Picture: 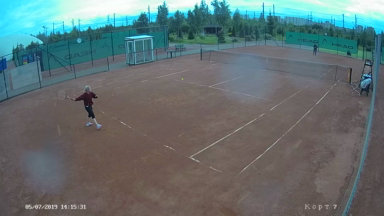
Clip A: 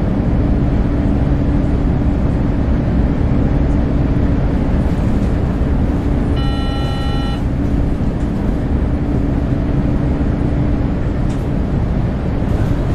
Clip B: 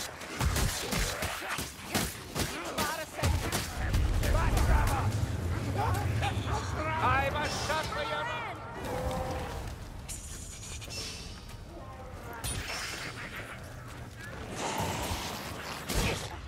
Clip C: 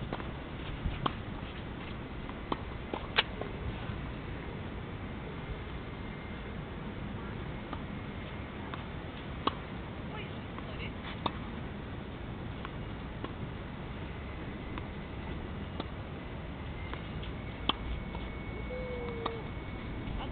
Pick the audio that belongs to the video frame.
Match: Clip C